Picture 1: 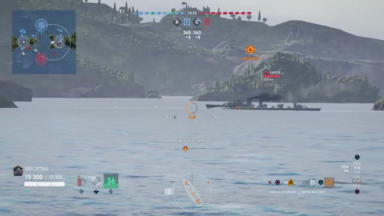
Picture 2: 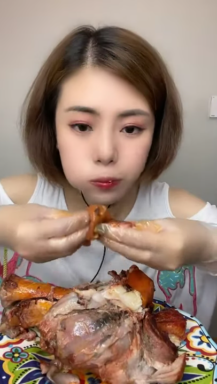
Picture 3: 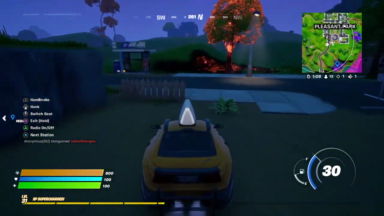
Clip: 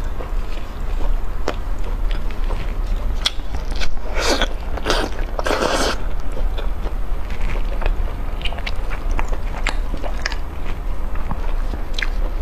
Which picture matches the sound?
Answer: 2